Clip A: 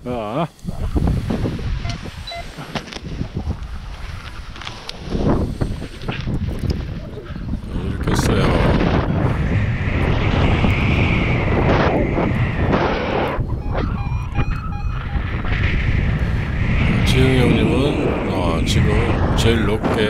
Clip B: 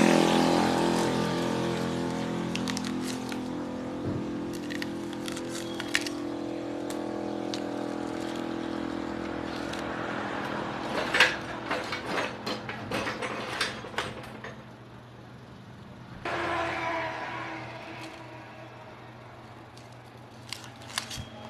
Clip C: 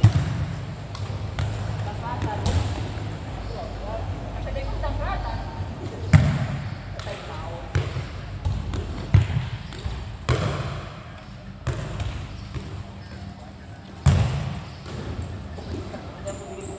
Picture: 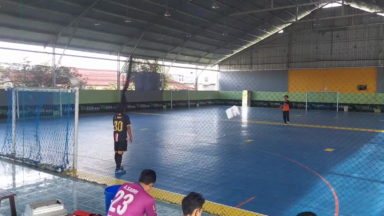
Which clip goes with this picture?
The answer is C